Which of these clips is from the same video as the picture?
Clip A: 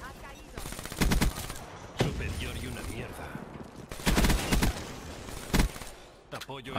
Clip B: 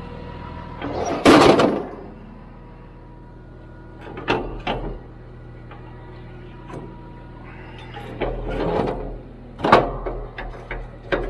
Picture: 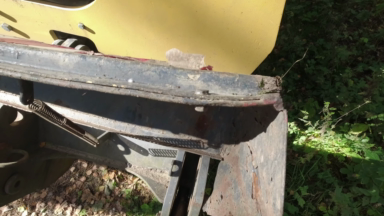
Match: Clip B